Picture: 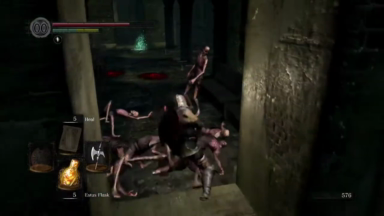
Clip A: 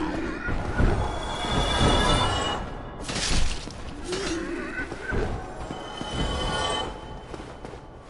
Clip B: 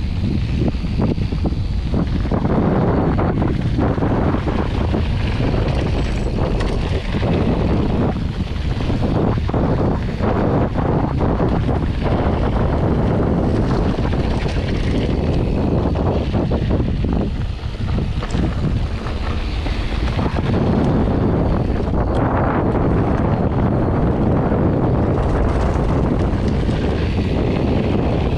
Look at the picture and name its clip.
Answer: A